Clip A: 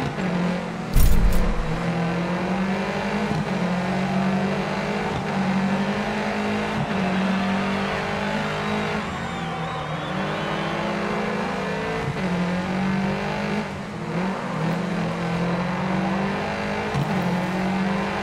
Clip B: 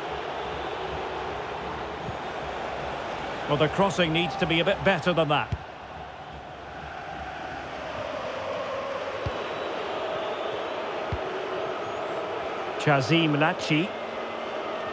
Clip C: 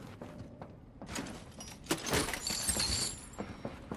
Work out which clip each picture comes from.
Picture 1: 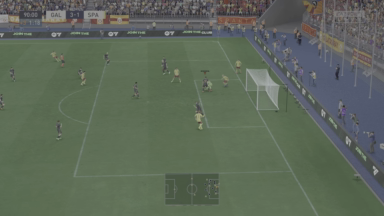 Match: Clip B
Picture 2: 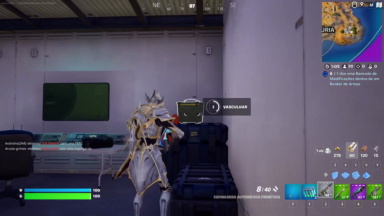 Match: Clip C